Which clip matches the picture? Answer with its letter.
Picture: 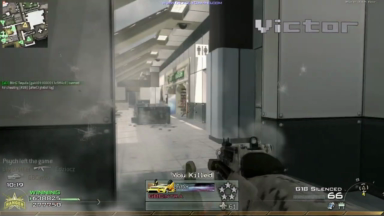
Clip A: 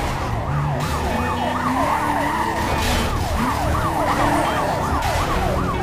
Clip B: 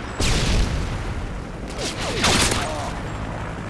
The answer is B